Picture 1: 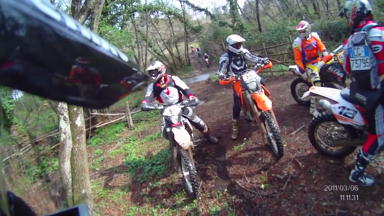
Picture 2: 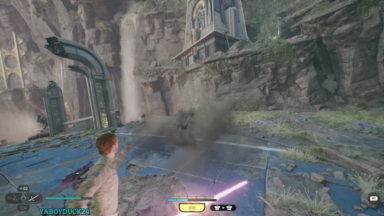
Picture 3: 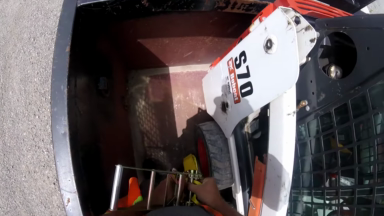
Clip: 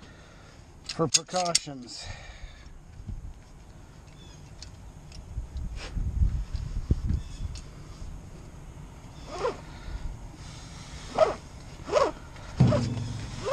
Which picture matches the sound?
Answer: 3